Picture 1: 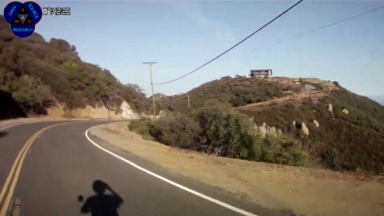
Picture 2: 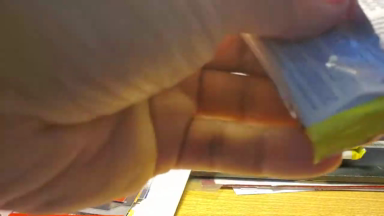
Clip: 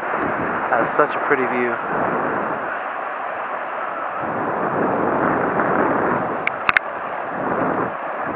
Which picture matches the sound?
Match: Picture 1